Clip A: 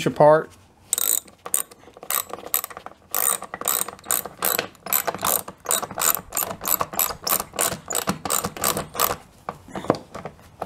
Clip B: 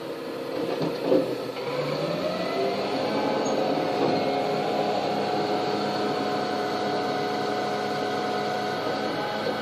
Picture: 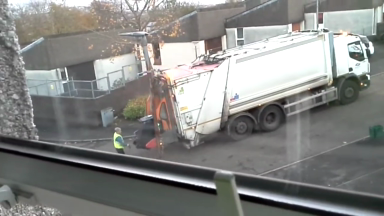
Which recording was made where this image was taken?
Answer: B